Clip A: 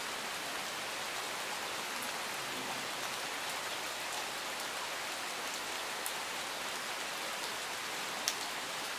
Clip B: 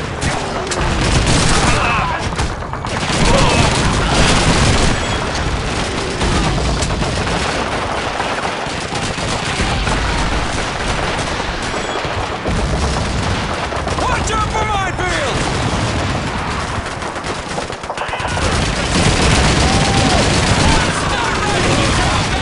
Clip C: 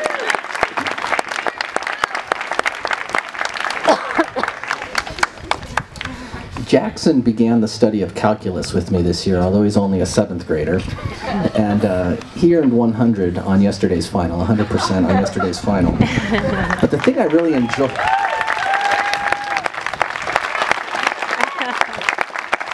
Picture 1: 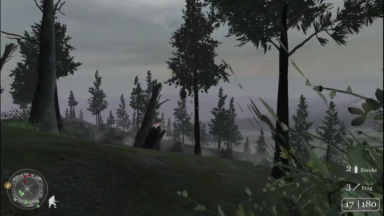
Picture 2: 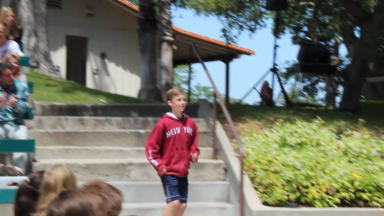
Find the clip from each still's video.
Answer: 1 B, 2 C